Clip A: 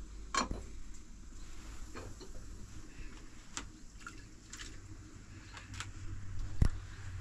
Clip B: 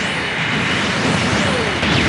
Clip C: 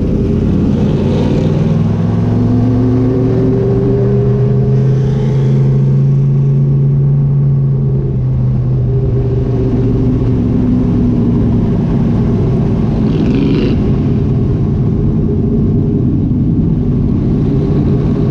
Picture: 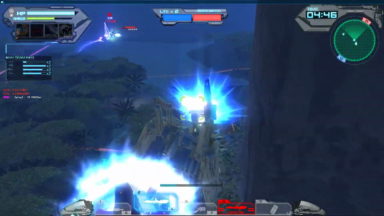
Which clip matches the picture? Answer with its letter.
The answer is B